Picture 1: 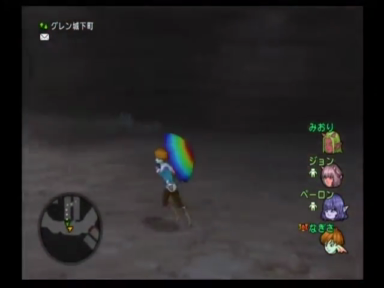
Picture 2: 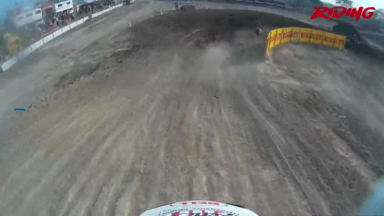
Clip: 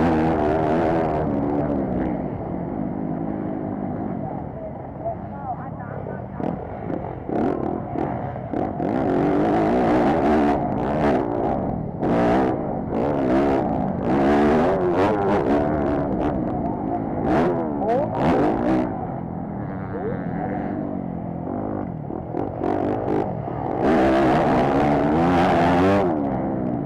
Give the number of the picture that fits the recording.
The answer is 2